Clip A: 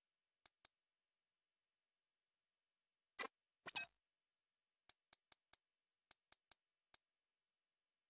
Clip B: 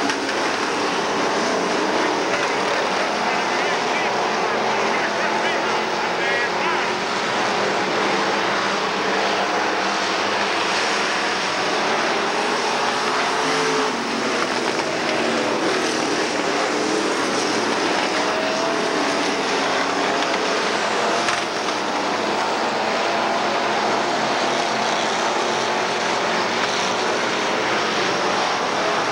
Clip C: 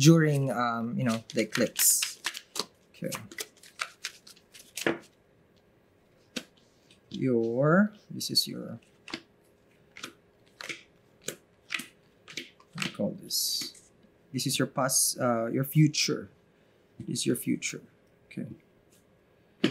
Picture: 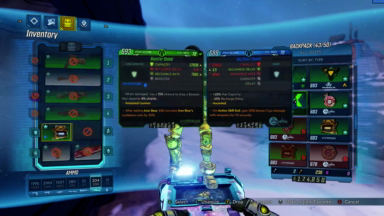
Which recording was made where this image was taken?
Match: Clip A